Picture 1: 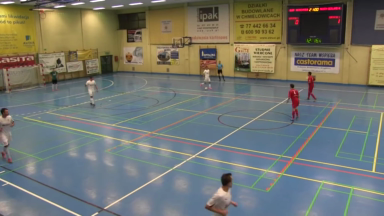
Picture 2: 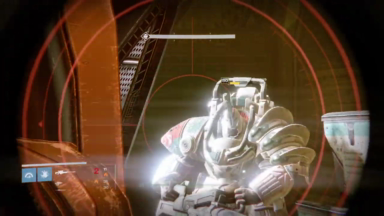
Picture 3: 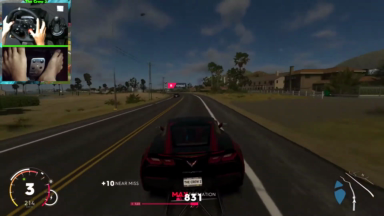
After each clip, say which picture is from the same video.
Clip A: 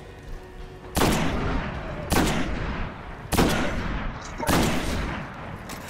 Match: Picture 2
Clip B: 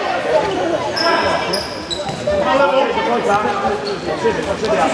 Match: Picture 1